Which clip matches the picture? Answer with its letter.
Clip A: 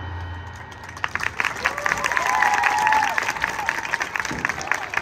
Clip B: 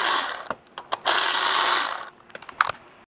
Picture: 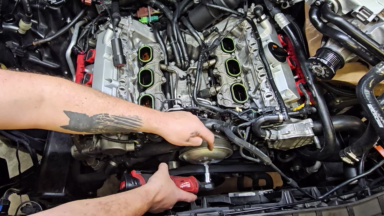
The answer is B